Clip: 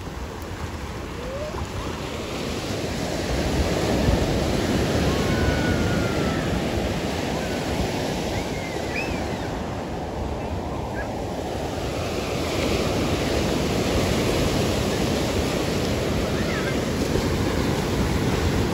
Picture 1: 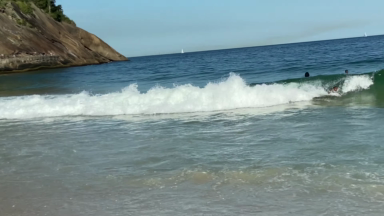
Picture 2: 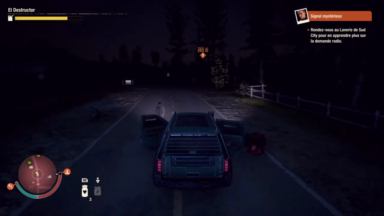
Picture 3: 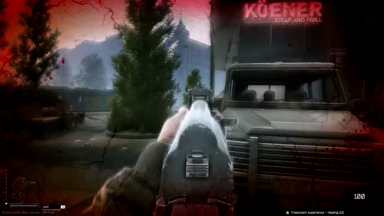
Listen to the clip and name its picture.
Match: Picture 1